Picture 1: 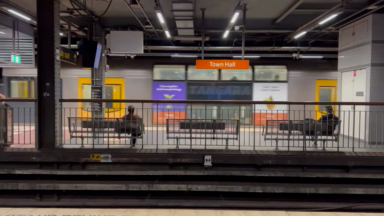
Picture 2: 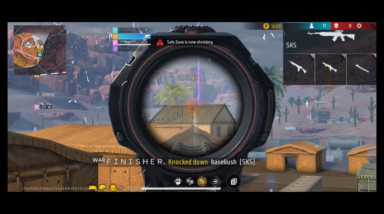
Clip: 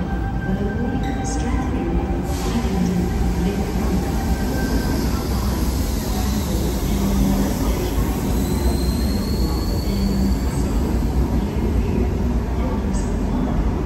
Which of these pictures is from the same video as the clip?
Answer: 1